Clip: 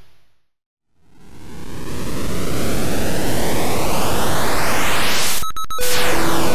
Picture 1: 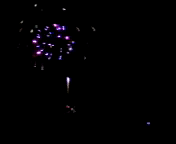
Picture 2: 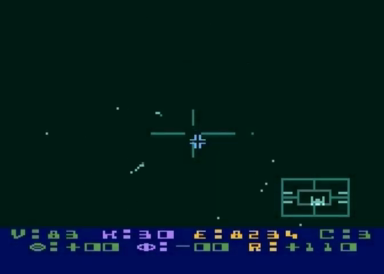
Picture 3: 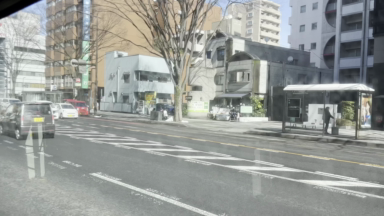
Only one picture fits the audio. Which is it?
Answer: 2